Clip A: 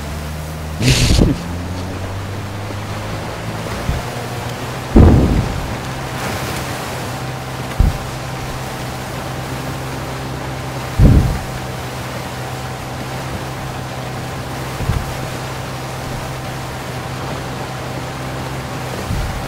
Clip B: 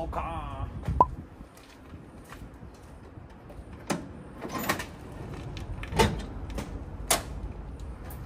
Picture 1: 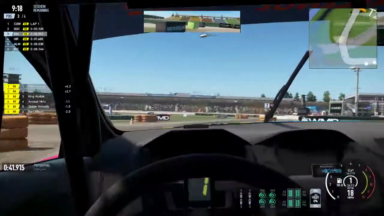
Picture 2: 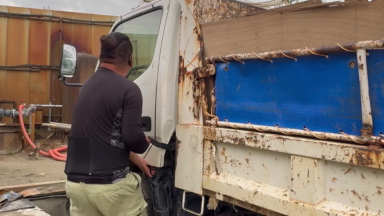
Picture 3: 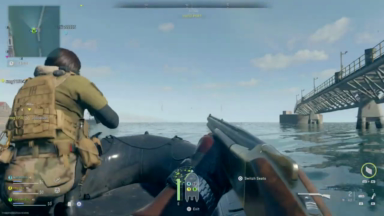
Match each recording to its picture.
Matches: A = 3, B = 2